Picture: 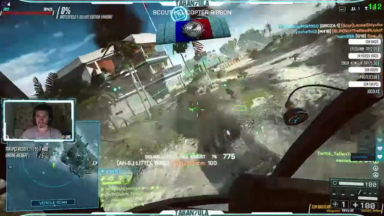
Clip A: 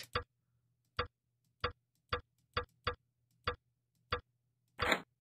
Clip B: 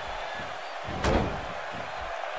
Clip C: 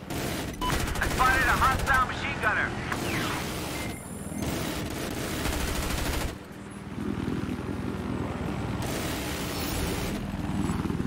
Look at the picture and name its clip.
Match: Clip C